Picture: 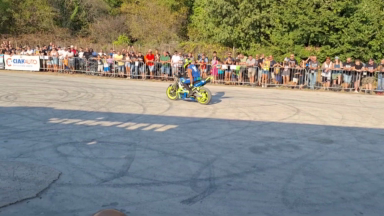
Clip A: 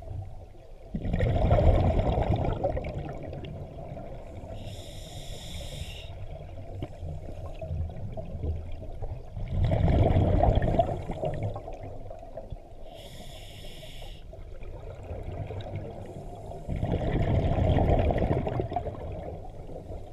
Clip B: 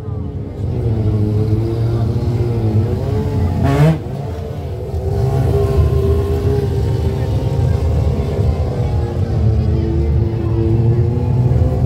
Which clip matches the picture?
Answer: B